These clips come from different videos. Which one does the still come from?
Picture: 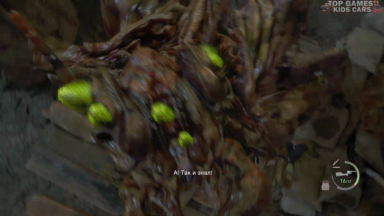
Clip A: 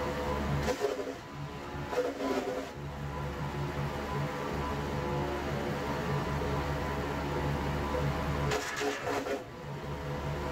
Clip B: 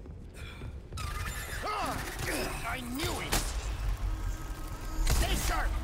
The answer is B